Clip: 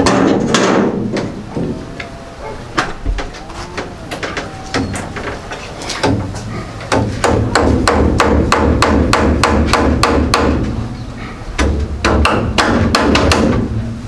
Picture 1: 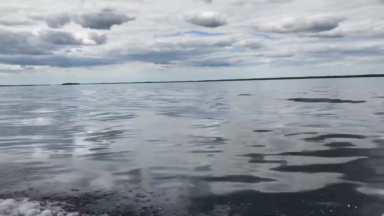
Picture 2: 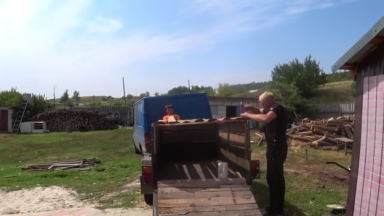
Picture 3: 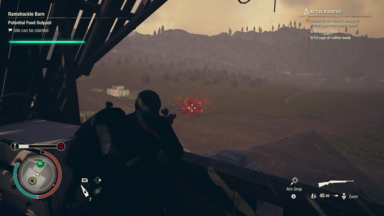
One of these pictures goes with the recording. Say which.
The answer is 2